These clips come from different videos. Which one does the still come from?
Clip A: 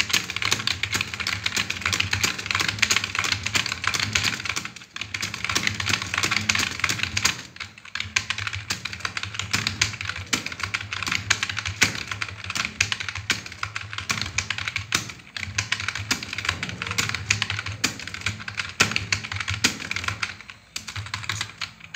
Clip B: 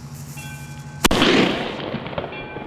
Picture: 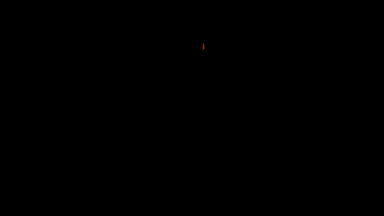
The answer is B